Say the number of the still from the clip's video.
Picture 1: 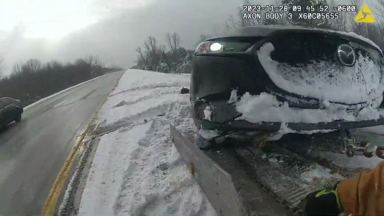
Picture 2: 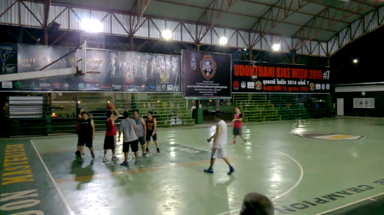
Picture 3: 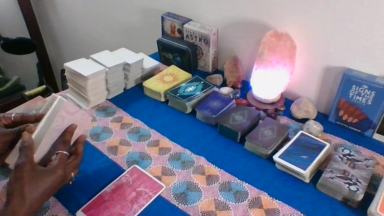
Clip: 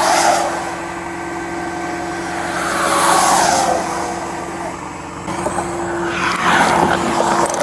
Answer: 1